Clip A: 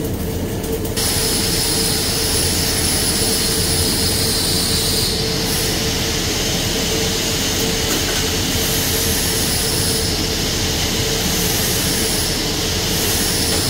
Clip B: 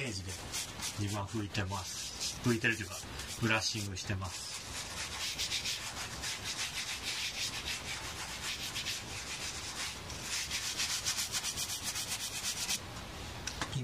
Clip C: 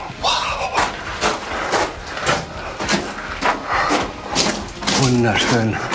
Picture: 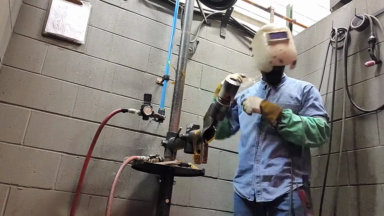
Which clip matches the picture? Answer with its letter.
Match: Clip A